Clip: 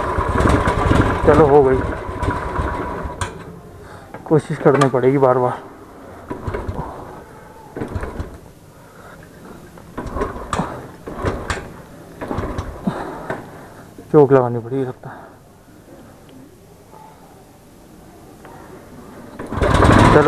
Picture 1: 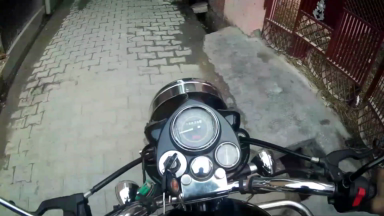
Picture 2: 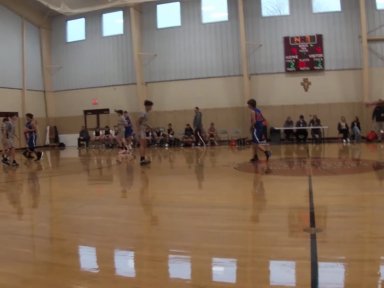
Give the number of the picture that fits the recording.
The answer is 1